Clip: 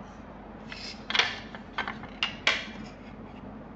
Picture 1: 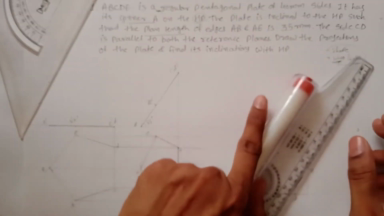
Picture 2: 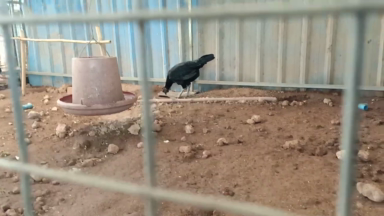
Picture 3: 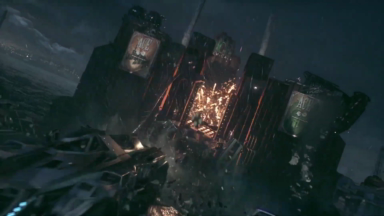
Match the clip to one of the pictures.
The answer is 1